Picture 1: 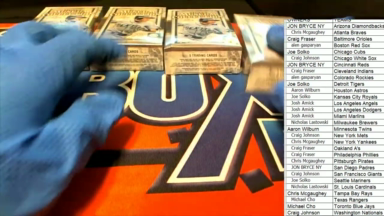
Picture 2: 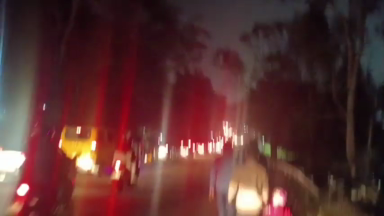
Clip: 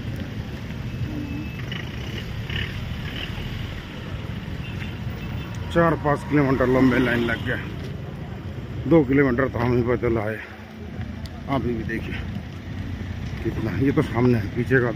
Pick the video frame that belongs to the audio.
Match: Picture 2